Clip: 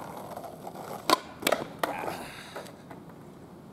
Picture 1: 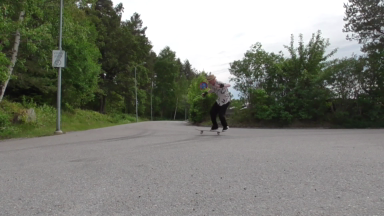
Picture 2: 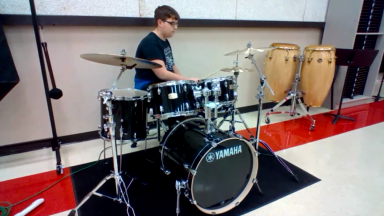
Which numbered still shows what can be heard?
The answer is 1